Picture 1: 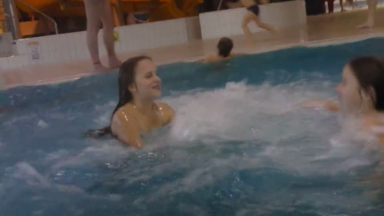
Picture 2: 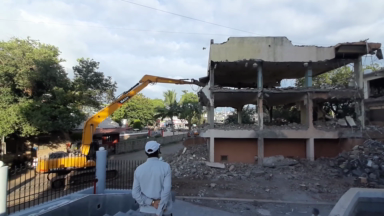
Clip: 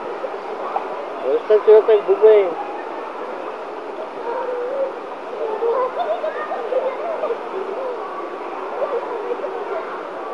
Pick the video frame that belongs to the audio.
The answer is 1